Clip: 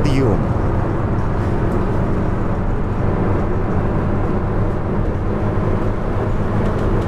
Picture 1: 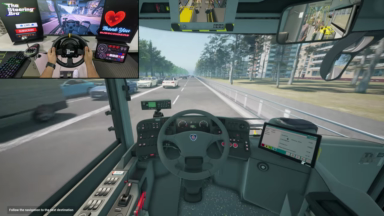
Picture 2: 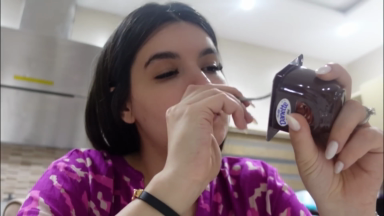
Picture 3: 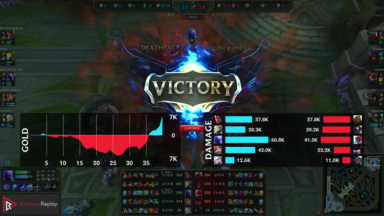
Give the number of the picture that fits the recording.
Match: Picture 1